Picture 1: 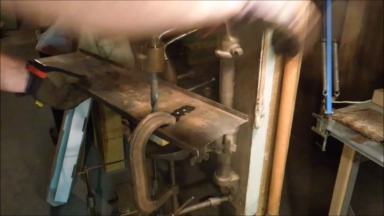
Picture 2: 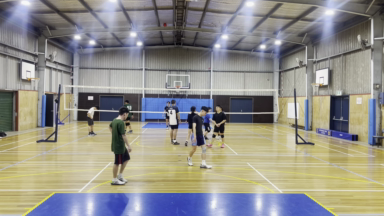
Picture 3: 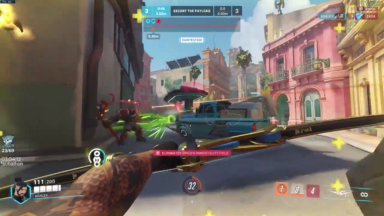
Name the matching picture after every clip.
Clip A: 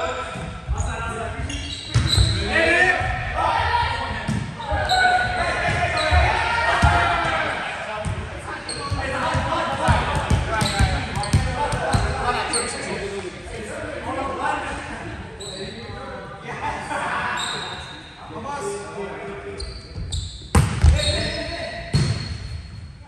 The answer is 2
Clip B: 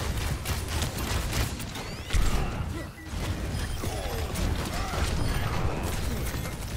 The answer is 3